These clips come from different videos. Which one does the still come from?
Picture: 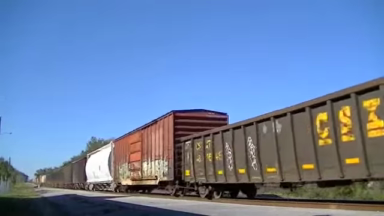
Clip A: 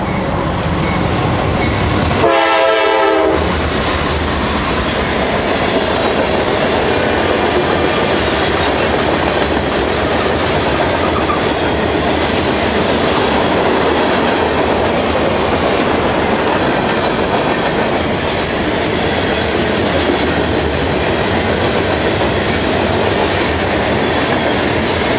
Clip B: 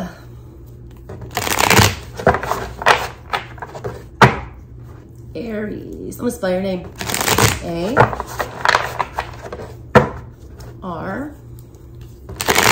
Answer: A